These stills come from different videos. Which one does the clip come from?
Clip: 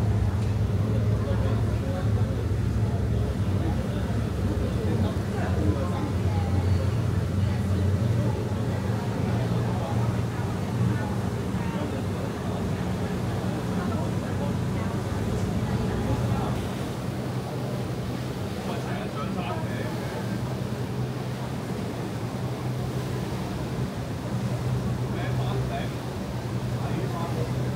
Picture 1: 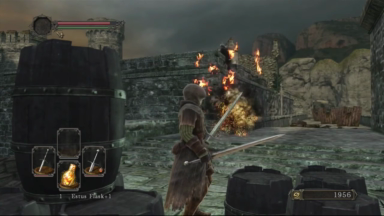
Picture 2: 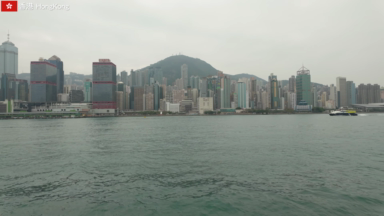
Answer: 2